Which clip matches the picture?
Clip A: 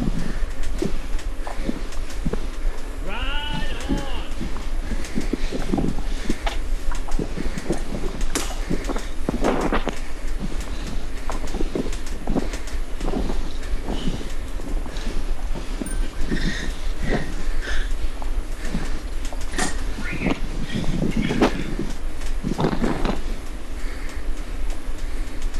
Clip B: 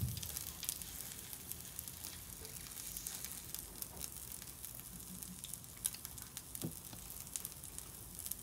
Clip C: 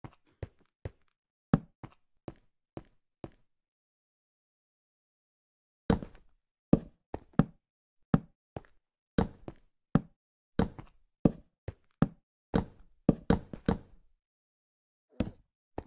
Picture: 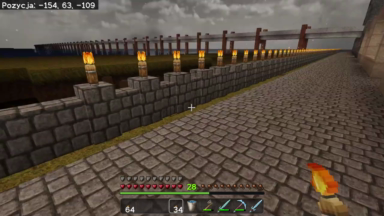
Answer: C